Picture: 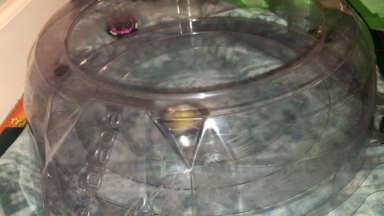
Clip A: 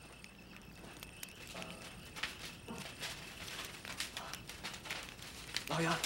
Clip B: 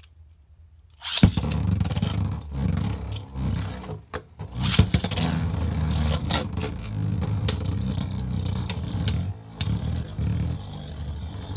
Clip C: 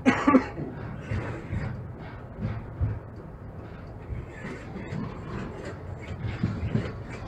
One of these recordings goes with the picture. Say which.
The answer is B